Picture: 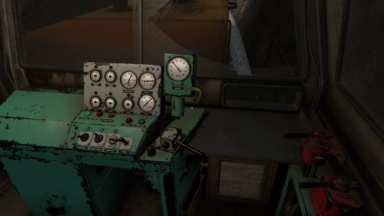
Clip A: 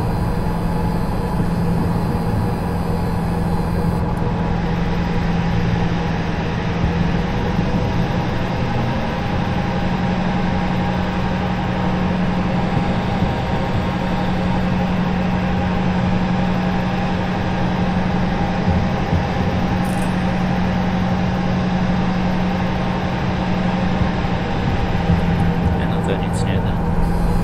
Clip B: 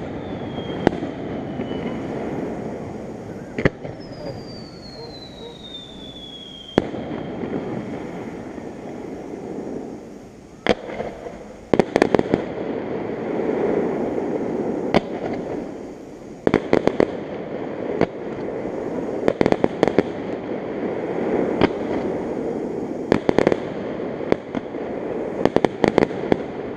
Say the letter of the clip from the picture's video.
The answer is A